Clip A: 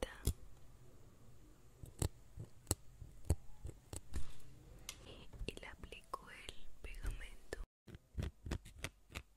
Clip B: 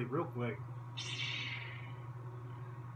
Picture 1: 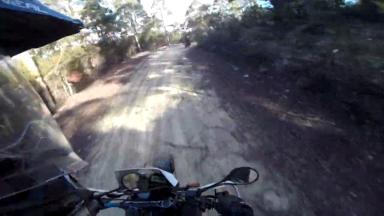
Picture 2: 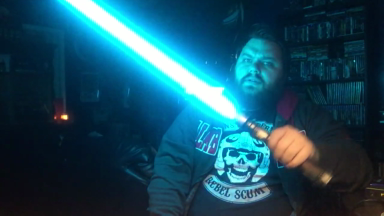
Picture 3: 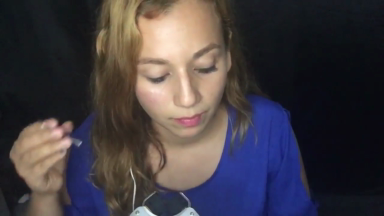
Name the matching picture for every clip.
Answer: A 3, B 2